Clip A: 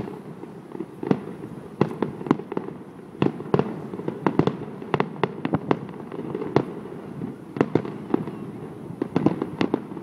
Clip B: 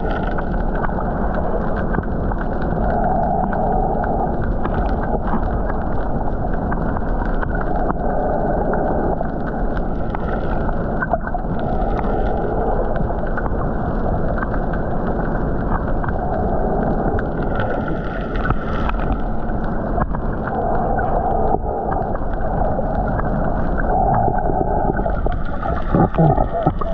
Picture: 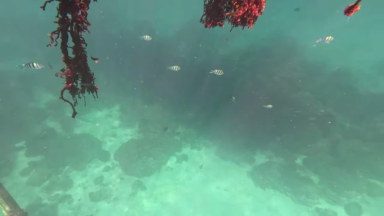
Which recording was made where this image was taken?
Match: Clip B